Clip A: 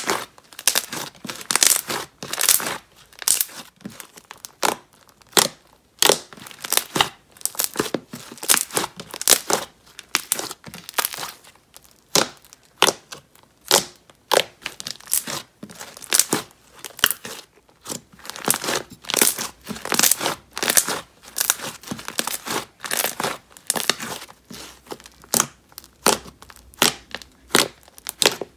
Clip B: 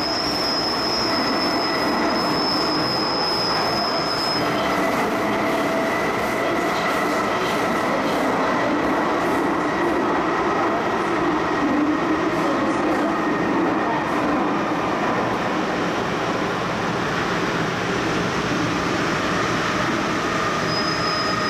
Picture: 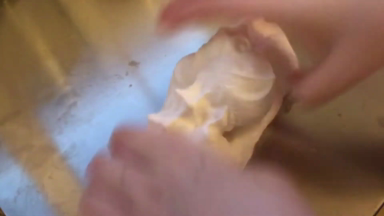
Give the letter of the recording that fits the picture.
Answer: A